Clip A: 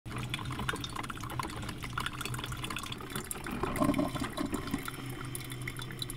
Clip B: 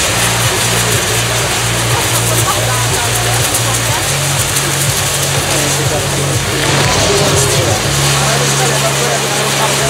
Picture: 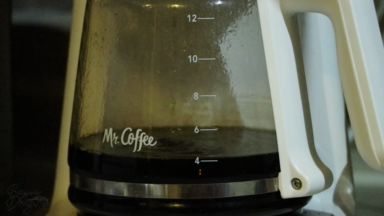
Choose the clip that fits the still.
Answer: A